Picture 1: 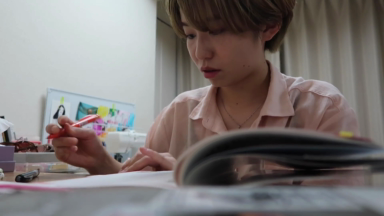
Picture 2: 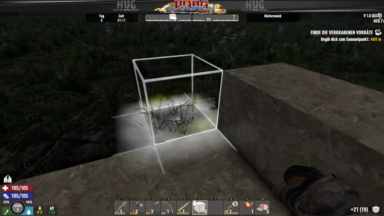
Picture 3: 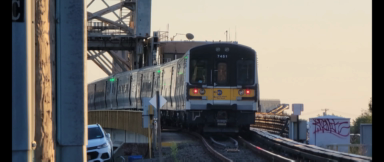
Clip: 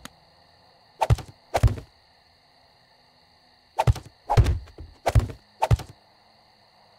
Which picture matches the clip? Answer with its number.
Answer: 2